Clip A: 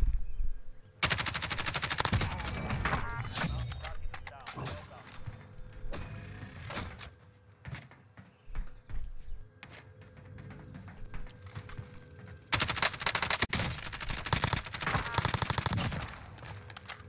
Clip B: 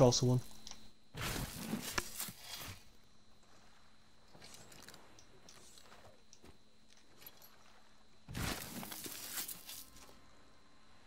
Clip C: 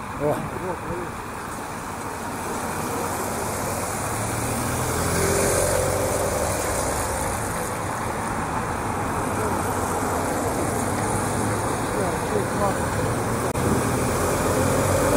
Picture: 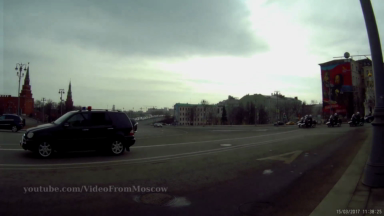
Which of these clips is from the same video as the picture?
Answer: C